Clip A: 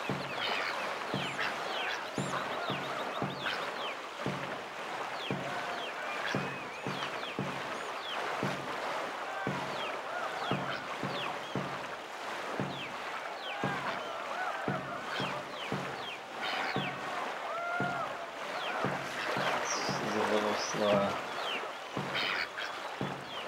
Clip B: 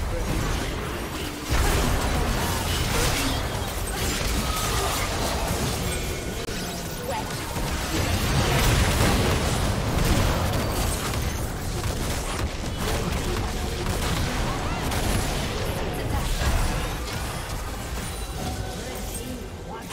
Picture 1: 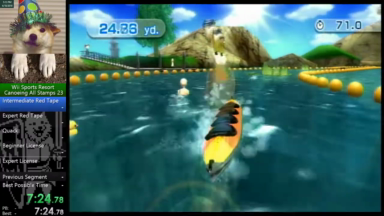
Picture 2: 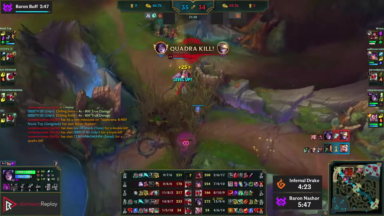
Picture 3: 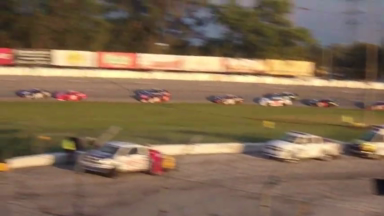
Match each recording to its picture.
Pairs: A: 1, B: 2